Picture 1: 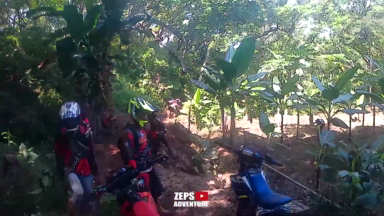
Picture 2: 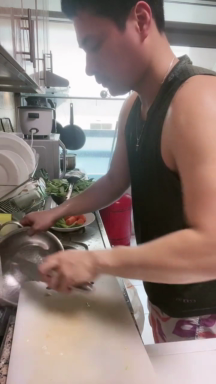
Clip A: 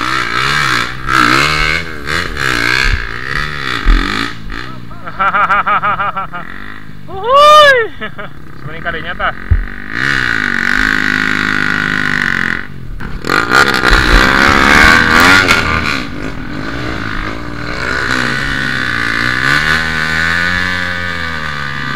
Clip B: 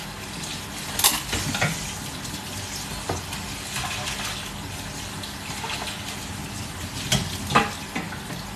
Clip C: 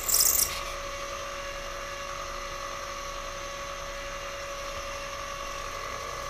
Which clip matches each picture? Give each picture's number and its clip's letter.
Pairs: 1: A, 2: B